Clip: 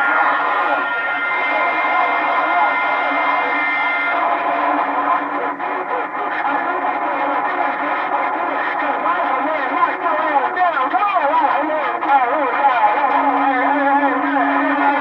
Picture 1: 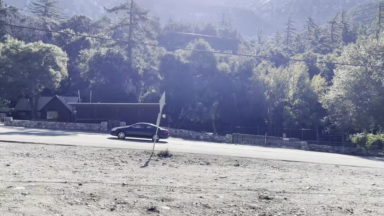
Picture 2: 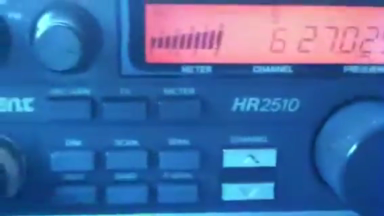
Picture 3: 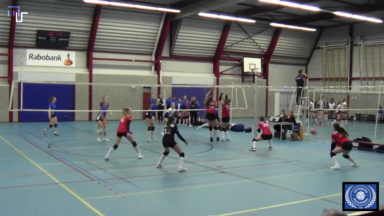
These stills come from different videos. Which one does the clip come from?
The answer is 2